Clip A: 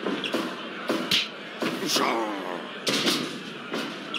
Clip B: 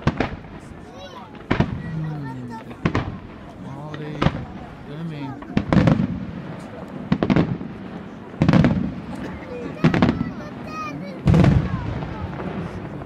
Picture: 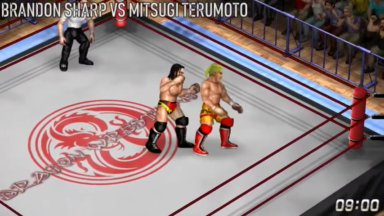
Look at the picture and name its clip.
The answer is A